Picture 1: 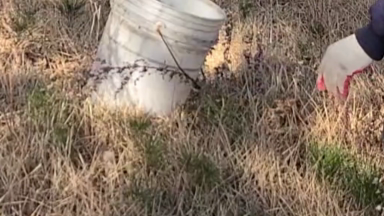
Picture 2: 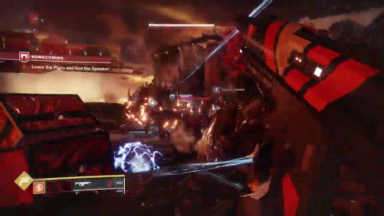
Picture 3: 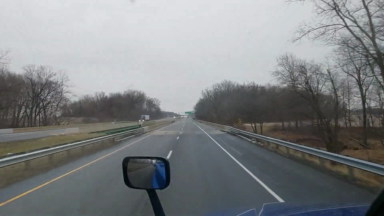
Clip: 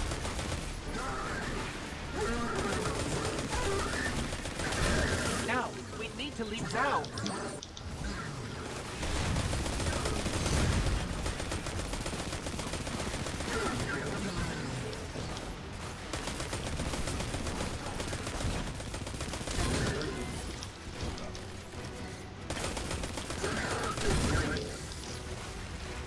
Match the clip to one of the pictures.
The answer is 2